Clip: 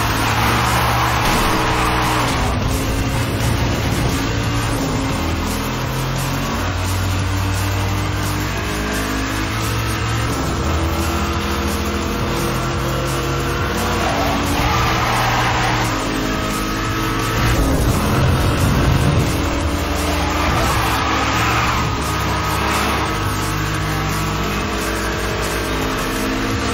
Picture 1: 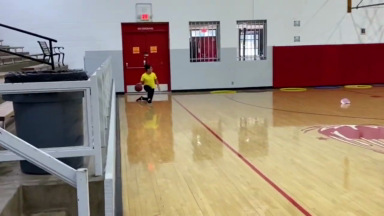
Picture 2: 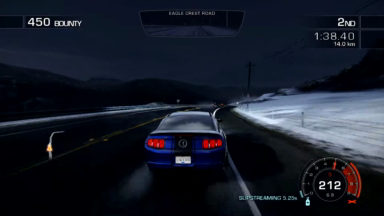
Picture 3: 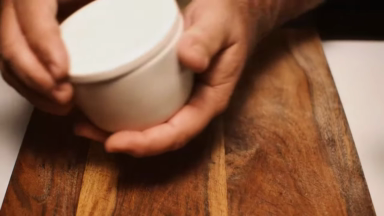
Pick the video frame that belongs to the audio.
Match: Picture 2